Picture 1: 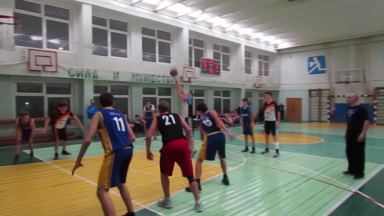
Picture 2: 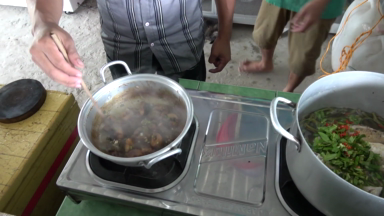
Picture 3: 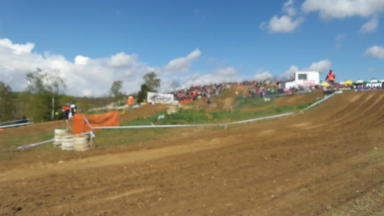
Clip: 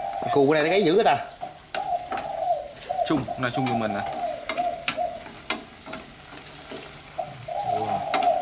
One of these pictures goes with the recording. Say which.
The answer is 2